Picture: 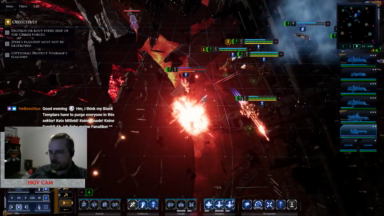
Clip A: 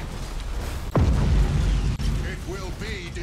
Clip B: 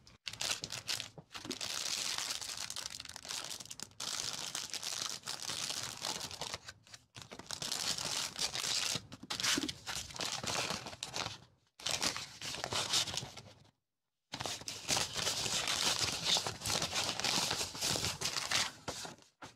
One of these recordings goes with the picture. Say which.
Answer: A